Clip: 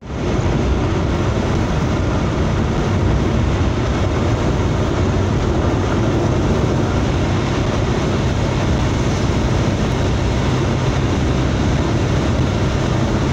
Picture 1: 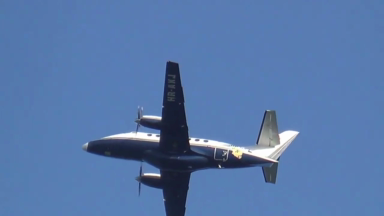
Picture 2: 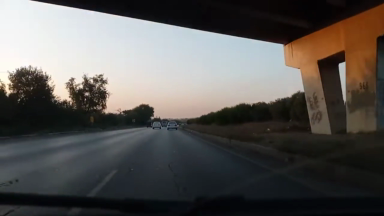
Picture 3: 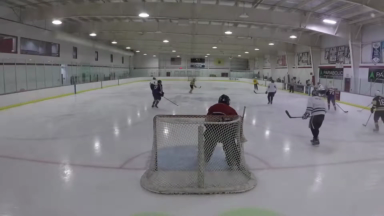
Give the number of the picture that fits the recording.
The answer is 2